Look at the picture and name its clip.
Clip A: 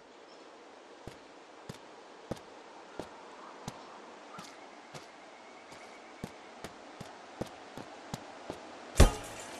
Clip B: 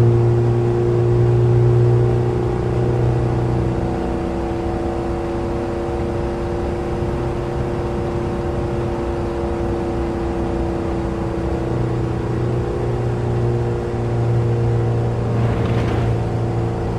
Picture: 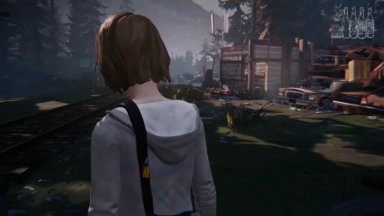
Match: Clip A